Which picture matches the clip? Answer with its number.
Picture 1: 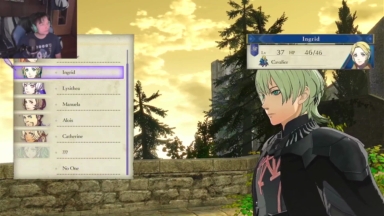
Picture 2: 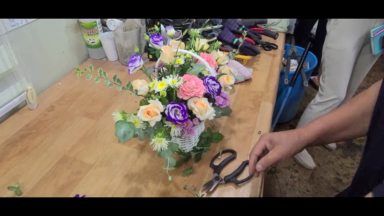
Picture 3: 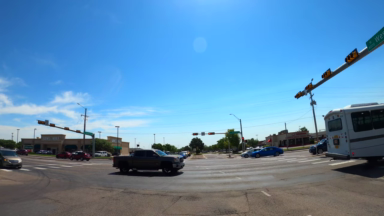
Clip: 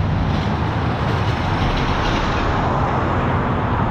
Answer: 3